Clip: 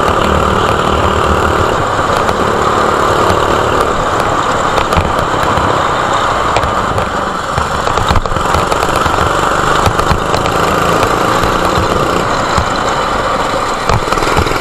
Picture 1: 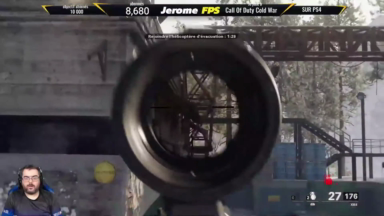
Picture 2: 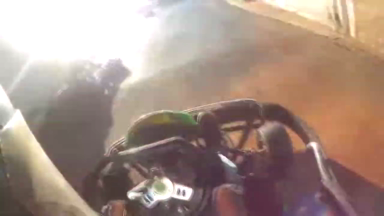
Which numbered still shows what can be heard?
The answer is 2